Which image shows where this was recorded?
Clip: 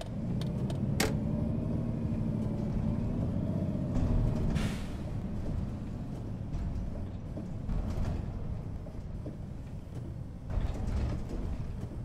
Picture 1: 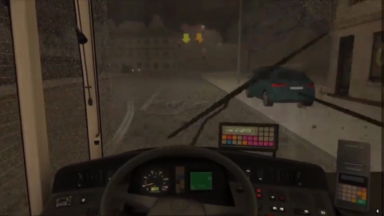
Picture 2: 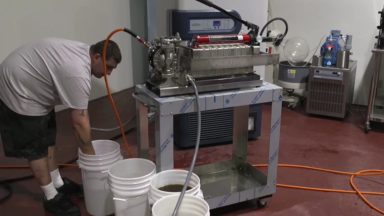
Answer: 1